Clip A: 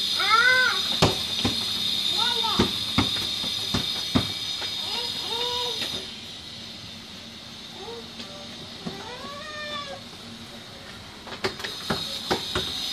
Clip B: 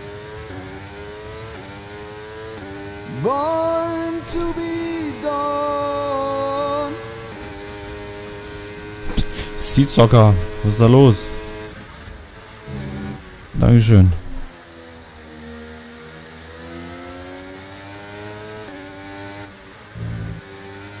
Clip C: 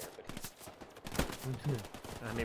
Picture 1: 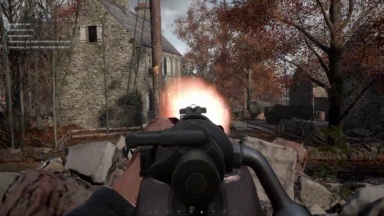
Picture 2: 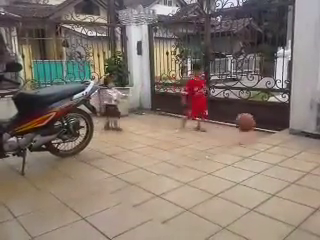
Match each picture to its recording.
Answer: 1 C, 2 A